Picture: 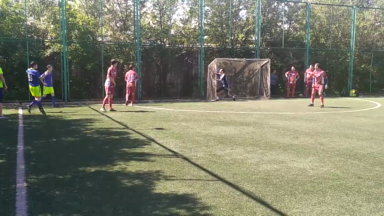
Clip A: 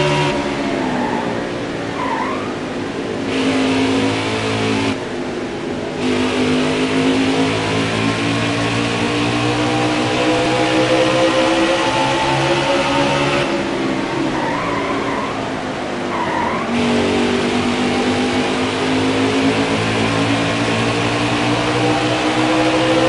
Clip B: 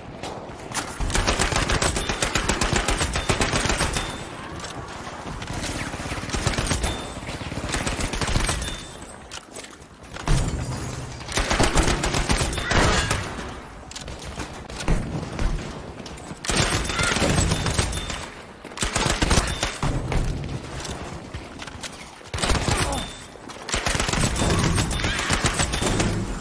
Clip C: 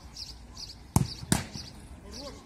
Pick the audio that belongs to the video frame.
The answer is C